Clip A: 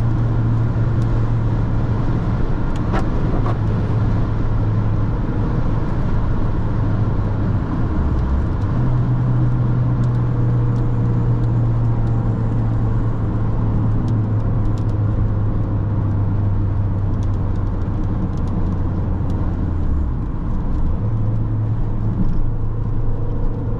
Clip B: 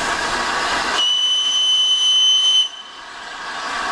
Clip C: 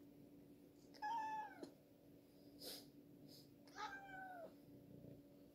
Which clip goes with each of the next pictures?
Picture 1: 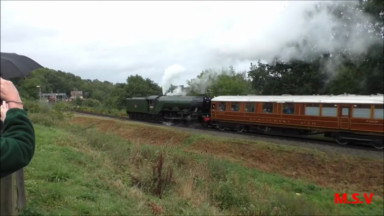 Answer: B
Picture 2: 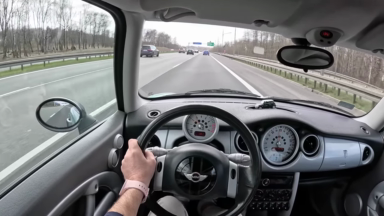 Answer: A